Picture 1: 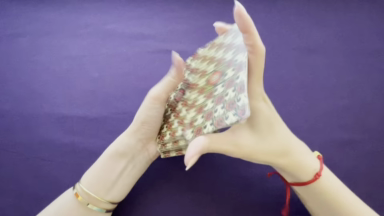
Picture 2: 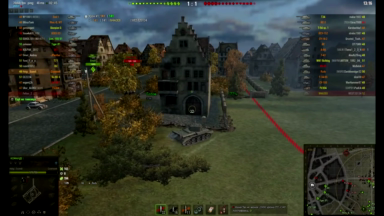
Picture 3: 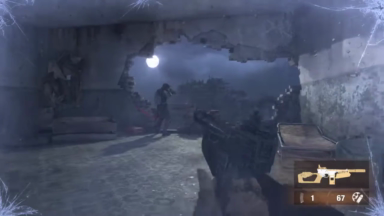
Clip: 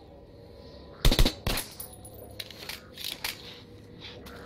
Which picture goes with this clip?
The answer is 3